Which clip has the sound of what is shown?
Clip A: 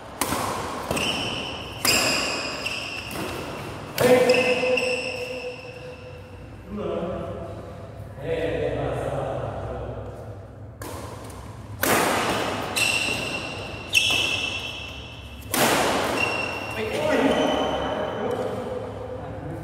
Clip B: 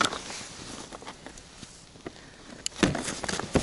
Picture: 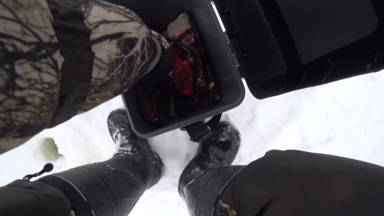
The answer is B